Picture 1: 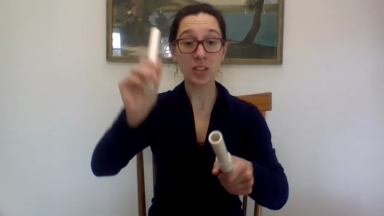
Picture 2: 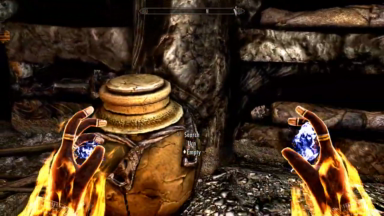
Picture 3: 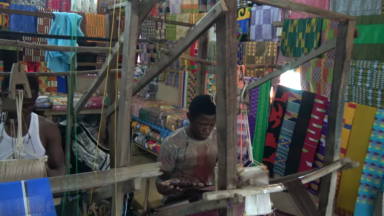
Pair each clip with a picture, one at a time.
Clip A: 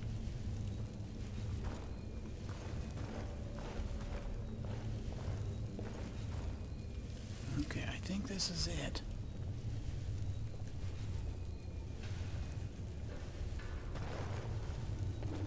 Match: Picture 2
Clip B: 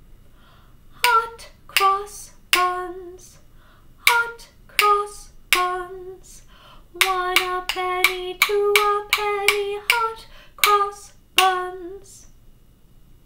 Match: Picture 1